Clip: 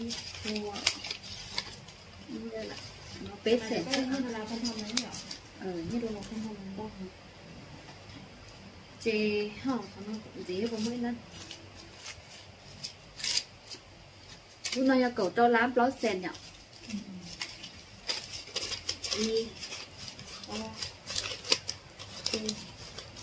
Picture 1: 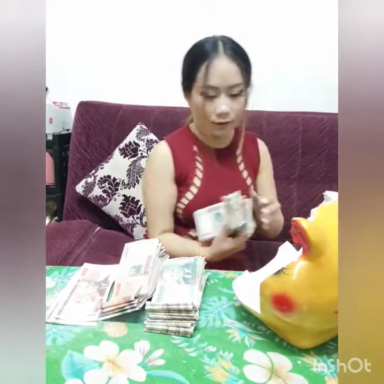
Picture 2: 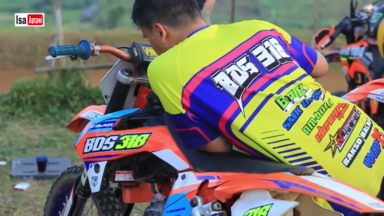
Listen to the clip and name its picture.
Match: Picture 1